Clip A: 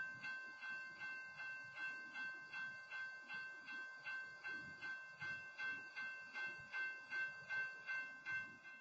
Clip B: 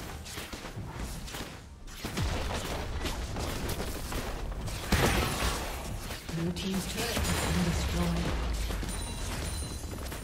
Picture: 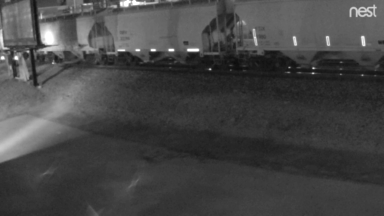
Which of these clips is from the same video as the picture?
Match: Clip A